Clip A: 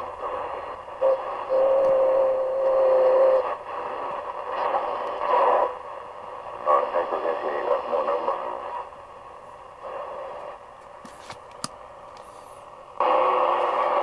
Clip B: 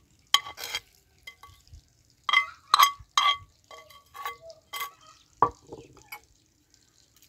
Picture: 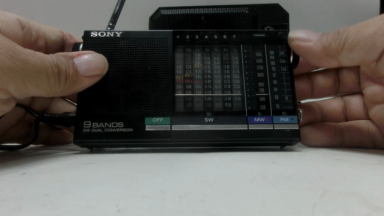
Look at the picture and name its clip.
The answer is A